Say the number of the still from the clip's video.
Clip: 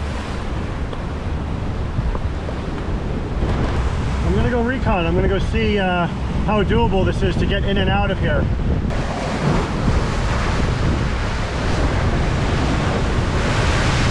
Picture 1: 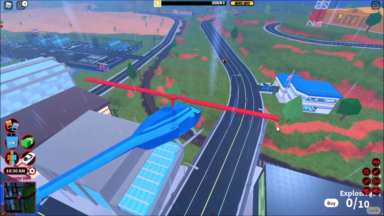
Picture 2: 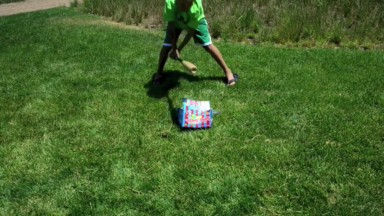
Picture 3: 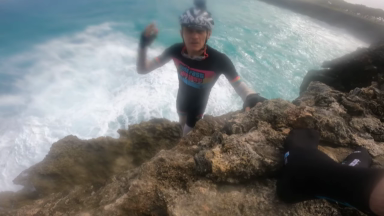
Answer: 3